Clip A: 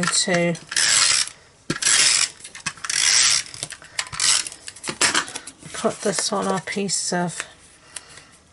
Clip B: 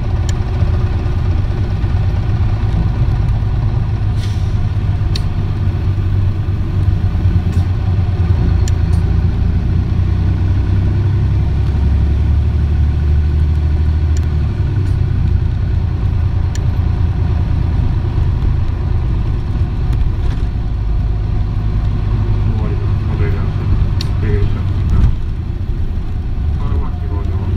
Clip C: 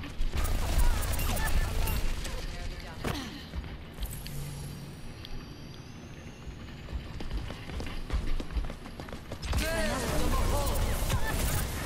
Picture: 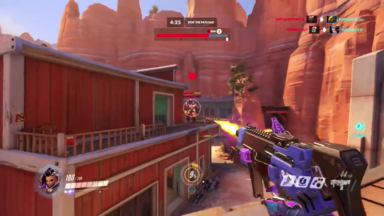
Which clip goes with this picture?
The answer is C